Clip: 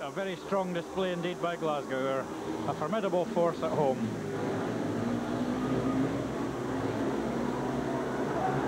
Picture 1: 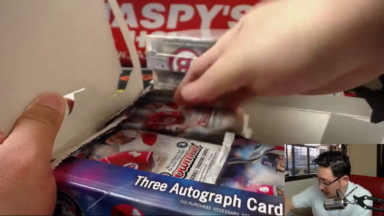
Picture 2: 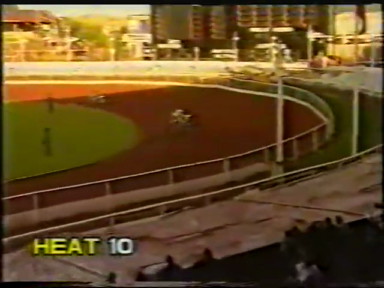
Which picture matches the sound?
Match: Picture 2